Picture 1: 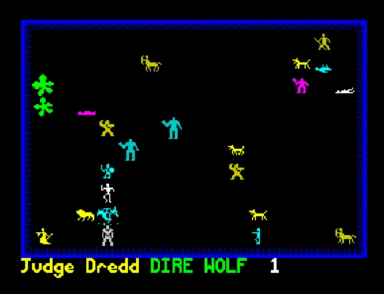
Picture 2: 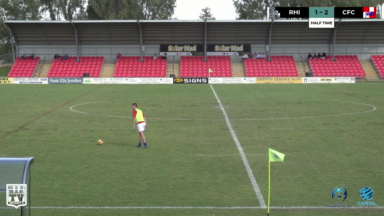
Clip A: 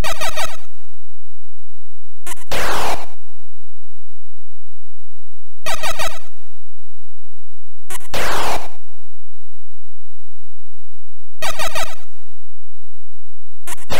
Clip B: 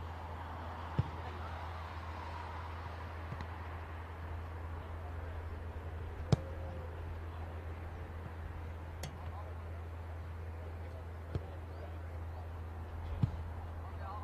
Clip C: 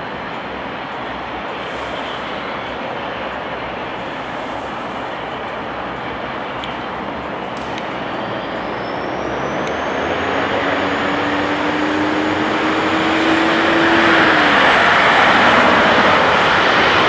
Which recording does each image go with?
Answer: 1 A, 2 B